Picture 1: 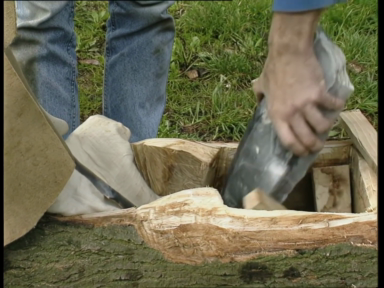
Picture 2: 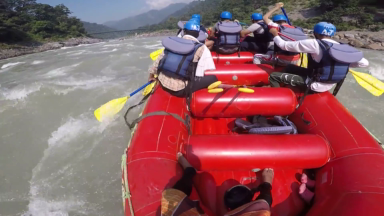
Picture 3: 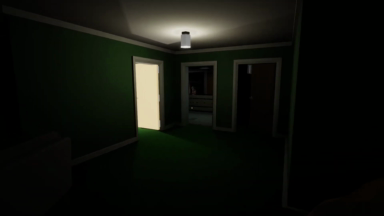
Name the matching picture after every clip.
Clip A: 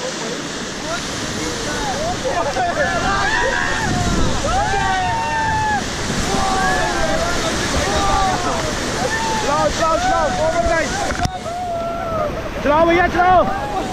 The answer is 2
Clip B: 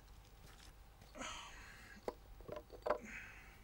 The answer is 1